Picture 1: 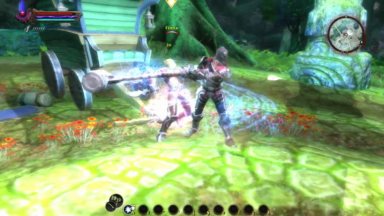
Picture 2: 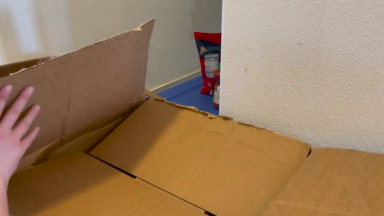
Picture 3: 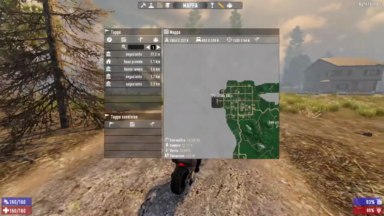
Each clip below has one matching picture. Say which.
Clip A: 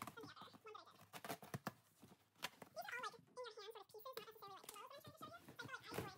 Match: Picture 2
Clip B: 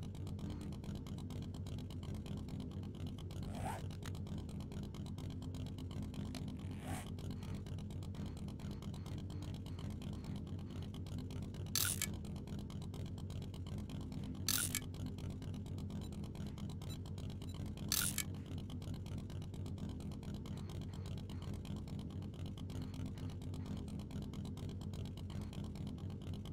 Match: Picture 3